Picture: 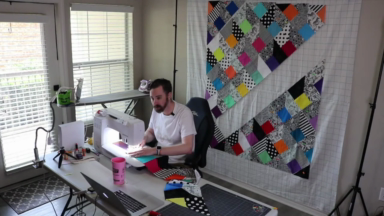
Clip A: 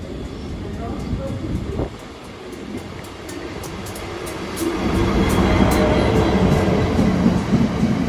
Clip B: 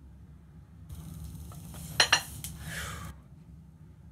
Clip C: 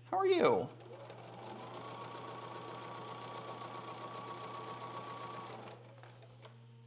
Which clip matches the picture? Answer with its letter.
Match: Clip C